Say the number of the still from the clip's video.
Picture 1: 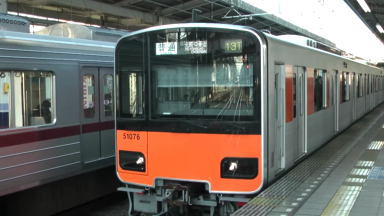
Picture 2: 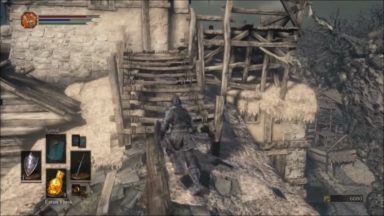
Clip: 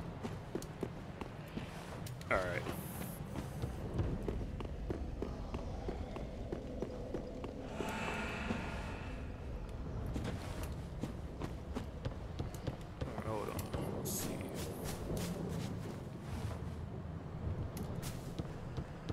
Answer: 2